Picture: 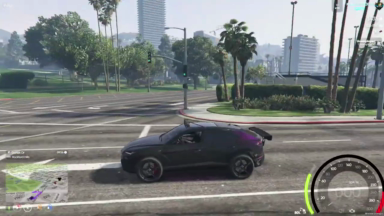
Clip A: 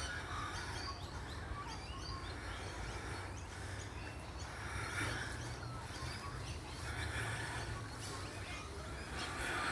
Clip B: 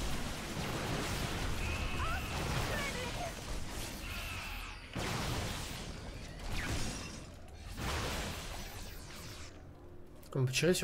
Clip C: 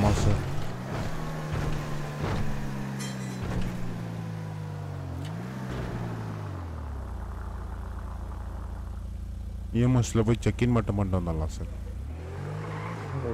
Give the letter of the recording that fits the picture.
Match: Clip C